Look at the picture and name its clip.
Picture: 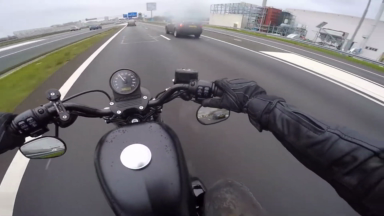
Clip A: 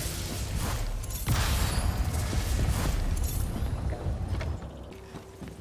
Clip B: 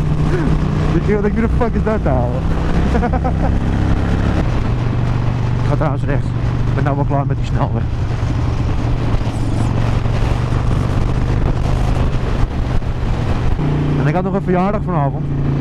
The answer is B